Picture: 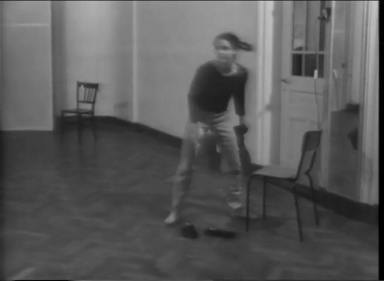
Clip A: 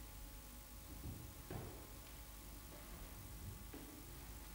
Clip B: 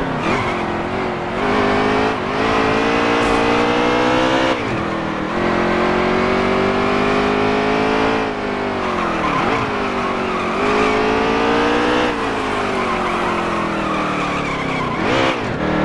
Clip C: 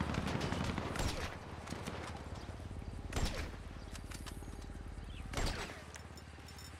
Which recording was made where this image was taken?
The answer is A